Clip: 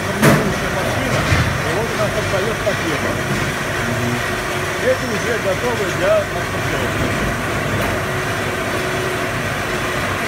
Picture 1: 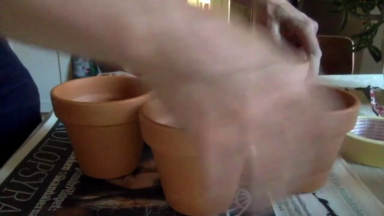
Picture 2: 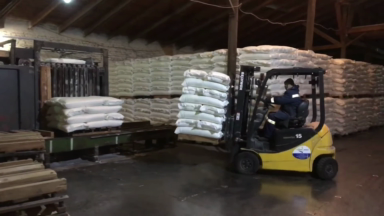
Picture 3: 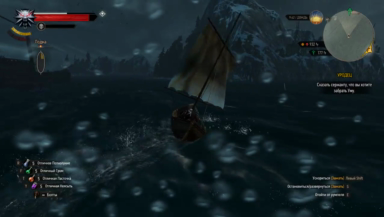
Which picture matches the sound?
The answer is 2